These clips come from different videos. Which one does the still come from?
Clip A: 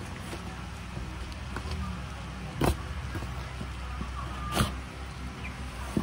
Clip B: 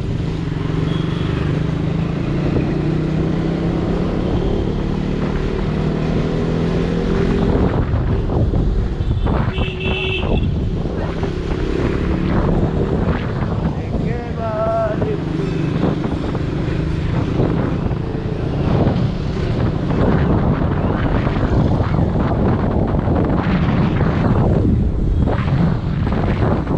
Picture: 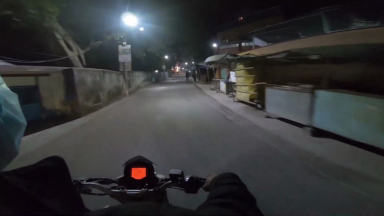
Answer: B